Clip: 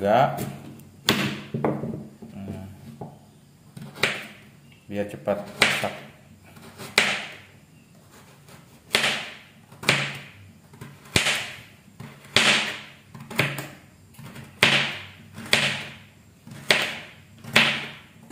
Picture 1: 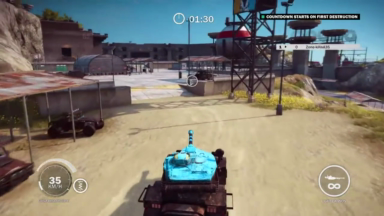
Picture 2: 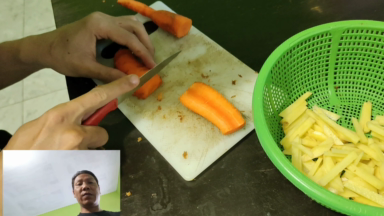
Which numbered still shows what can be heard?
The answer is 2